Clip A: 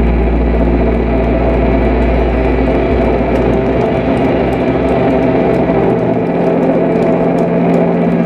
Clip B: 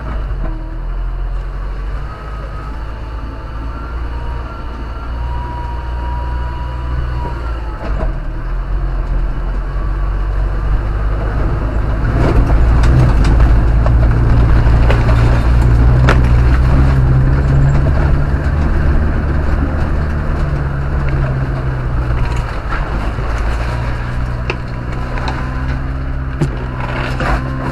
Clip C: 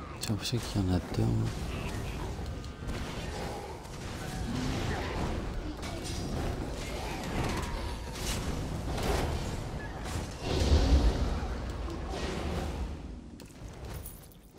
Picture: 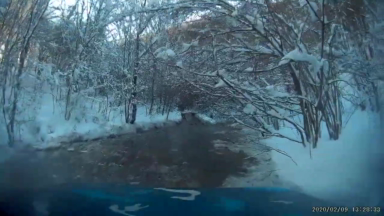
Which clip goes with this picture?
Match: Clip B